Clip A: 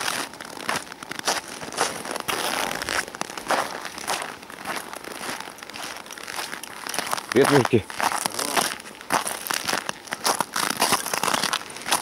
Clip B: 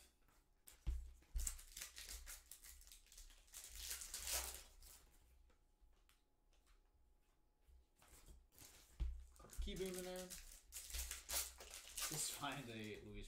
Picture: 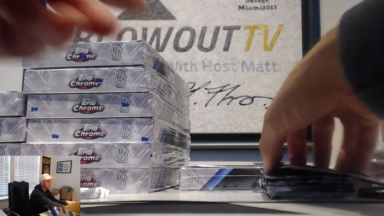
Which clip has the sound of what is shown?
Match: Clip B